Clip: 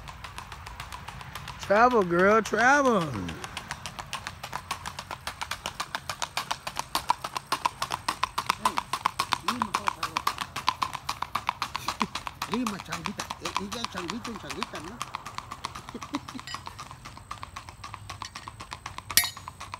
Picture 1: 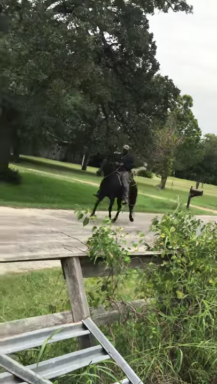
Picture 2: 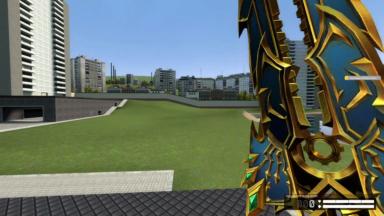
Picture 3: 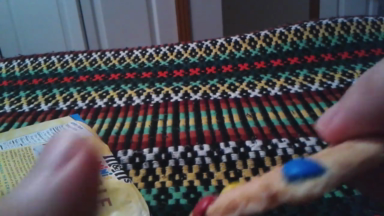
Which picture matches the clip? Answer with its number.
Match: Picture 1